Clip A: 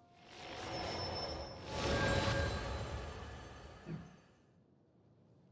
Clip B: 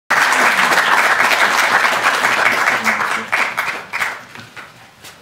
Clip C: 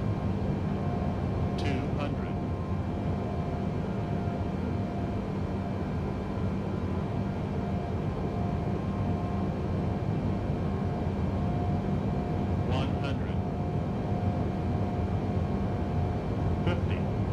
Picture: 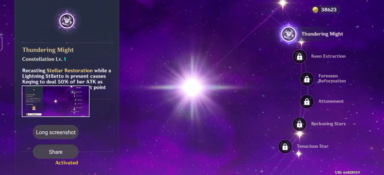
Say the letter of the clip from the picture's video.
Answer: A